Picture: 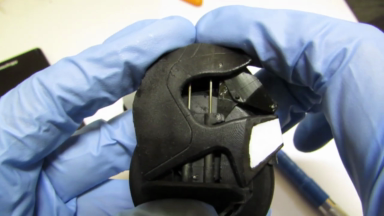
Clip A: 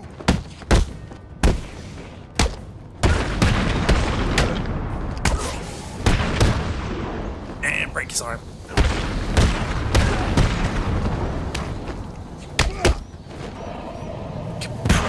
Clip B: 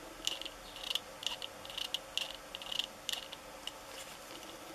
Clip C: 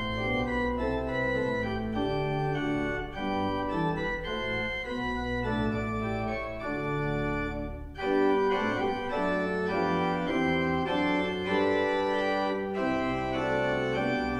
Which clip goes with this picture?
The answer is B